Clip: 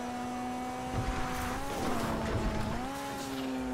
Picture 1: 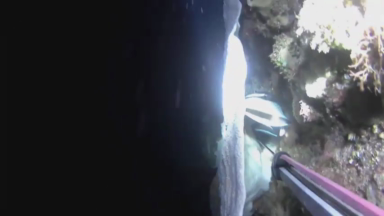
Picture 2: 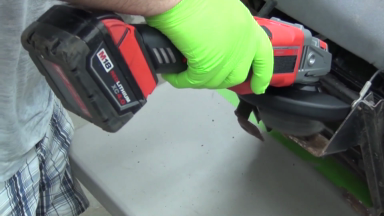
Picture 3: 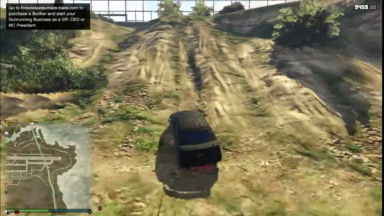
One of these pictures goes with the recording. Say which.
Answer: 3